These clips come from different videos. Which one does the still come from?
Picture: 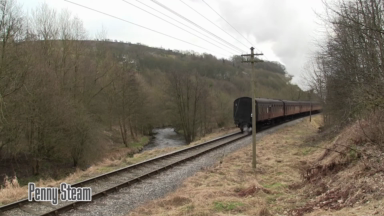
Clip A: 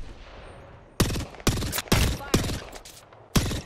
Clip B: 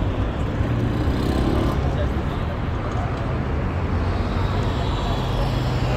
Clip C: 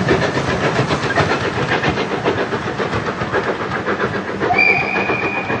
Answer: C